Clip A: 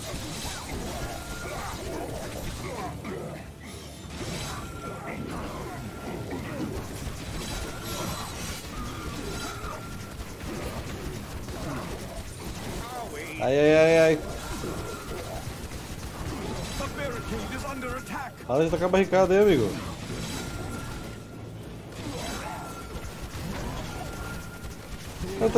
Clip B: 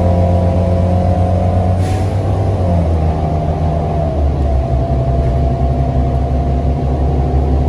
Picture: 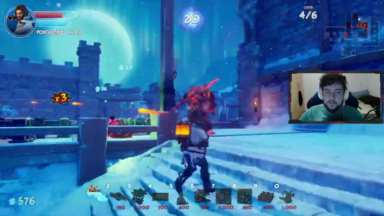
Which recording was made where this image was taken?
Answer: A